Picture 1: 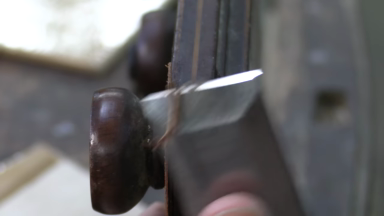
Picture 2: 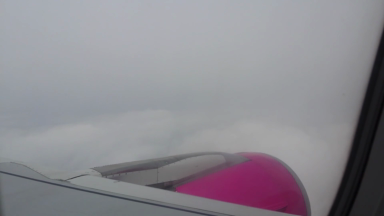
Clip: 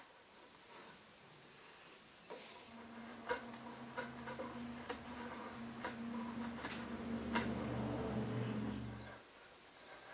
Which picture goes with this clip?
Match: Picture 1